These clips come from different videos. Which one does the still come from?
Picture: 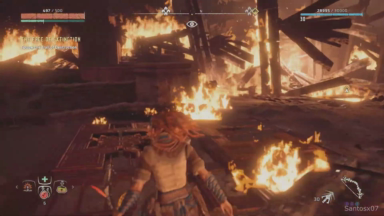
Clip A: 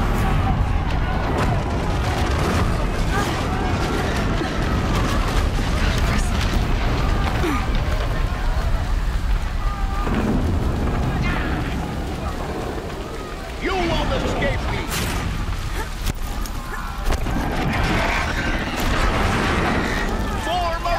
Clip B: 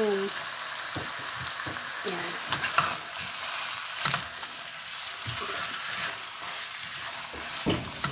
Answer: A